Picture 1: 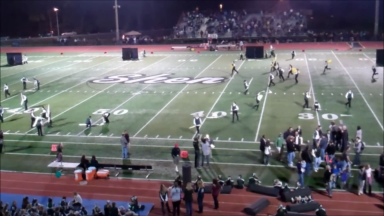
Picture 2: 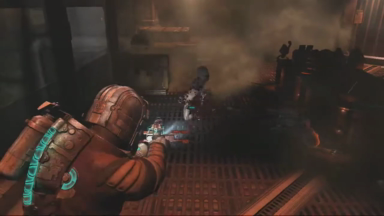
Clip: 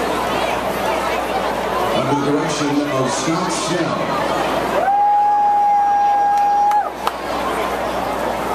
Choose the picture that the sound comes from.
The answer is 1